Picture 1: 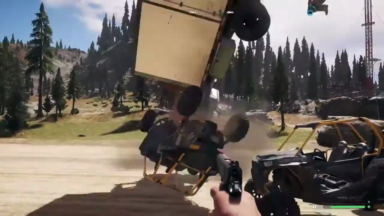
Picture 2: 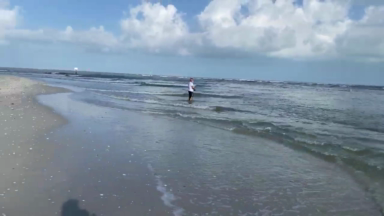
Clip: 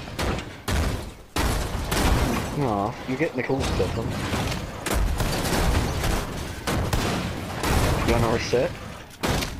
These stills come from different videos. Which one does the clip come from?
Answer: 1